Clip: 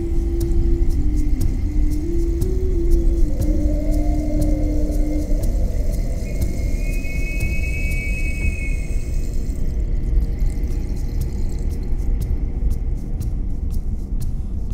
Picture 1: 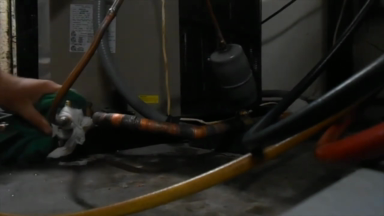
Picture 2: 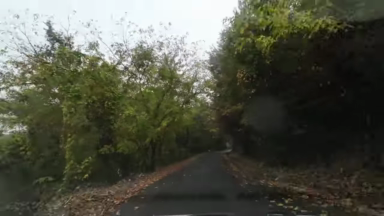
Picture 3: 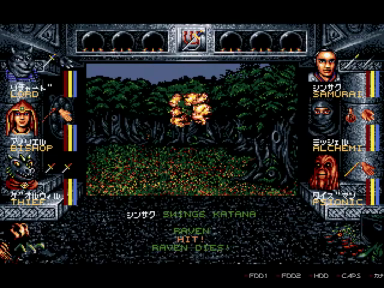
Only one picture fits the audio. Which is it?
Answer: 2